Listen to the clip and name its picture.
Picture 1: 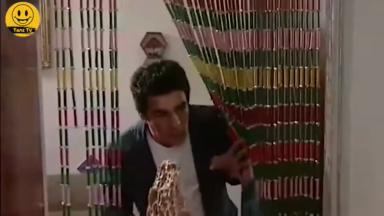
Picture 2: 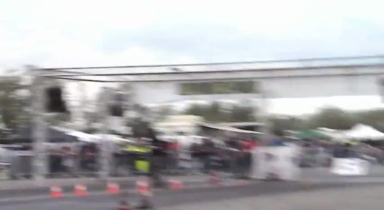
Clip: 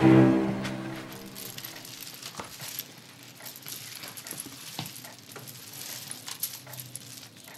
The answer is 1